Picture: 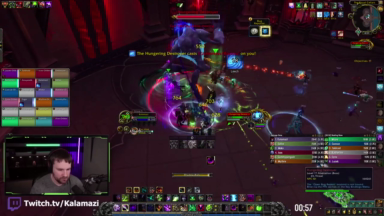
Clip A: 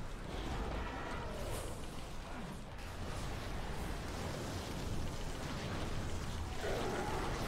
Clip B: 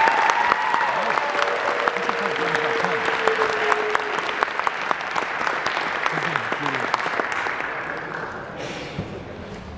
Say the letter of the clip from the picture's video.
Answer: A